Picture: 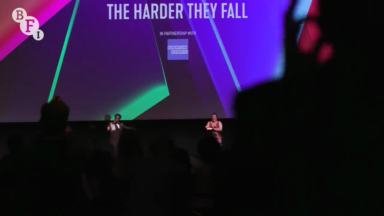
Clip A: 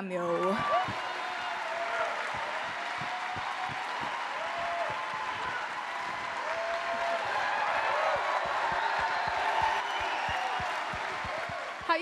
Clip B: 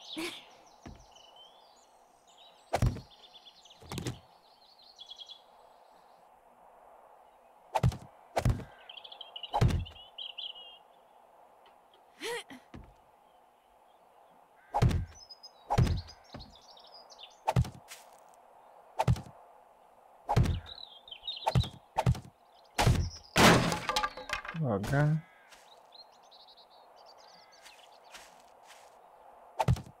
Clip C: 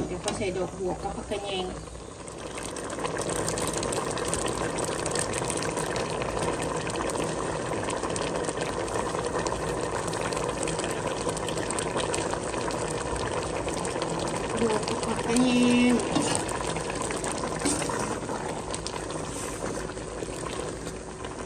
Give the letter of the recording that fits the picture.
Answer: A